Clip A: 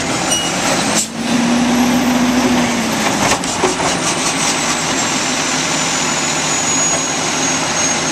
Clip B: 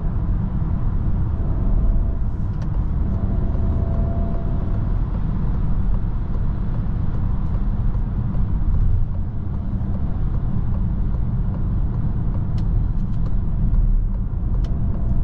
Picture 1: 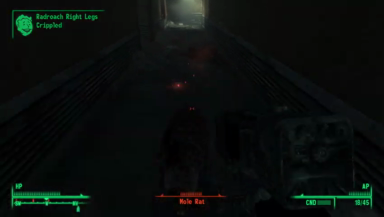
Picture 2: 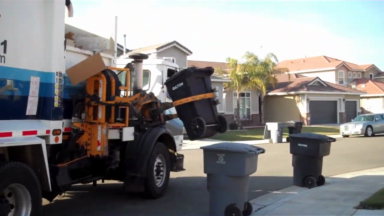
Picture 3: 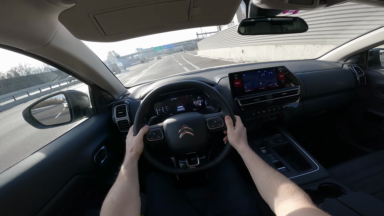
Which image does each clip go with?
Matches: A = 2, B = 3